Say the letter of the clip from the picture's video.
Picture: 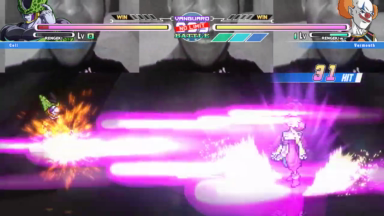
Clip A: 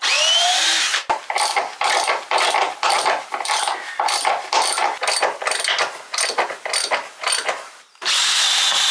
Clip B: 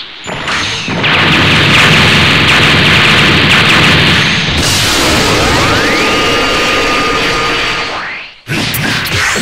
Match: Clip B